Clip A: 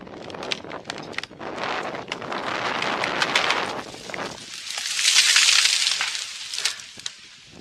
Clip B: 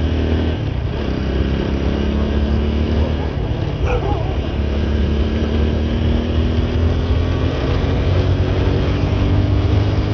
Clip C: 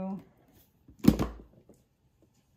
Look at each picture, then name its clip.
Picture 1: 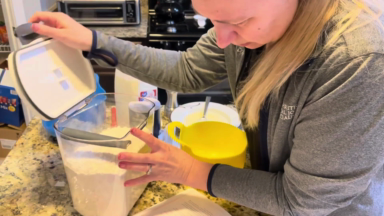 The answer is C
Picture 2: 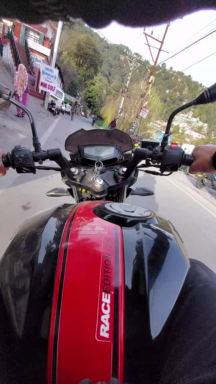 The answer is B